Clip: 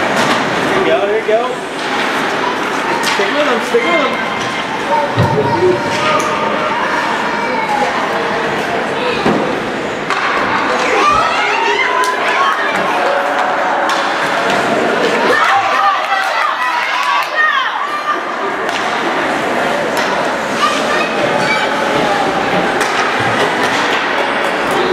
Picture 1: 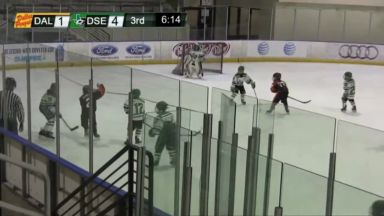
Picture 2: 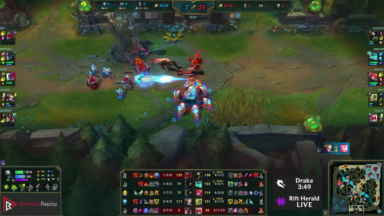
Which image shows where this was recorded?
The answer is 1